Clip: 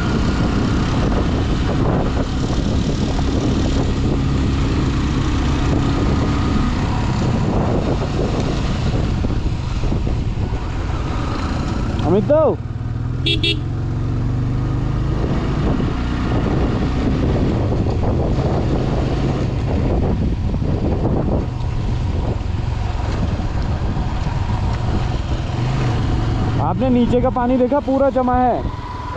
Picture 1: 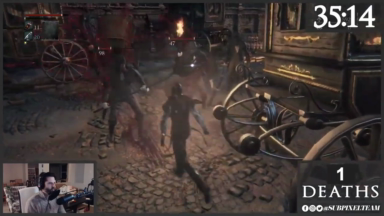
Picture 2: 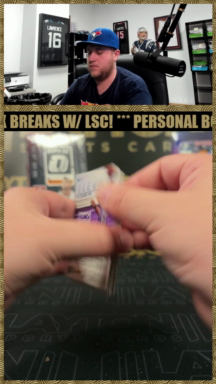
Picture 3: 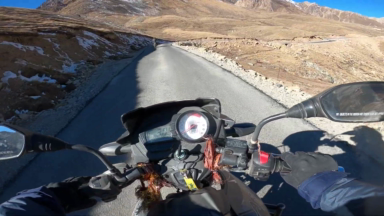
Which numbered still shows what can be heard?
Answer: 3